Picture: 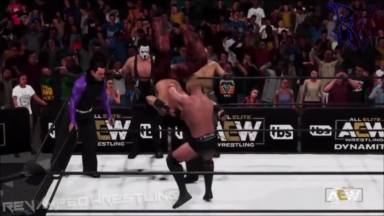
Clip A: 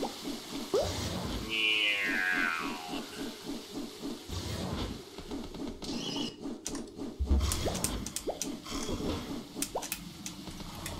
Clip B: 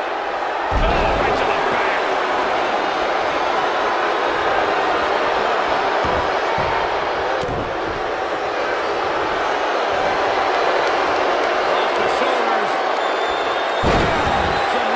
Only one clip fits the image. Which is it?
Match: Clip B